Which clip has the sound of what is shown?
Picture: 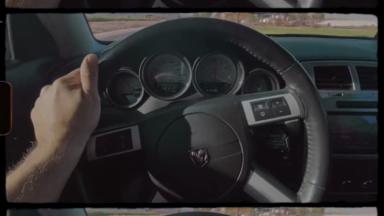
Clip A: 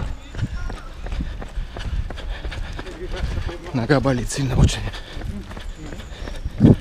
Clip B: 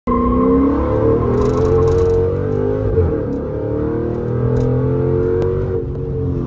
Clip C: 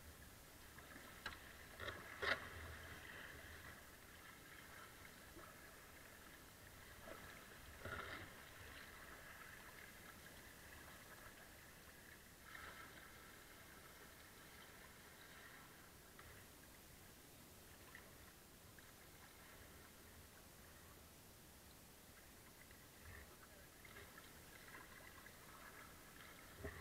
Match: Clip B